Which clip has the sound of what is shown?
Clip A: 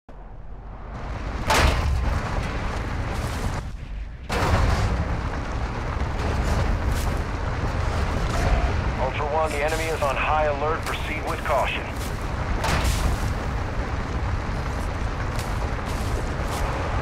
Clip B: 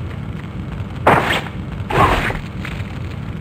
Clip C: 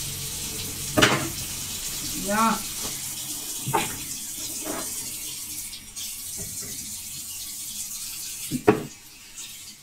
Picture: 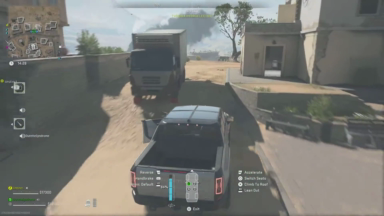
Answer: A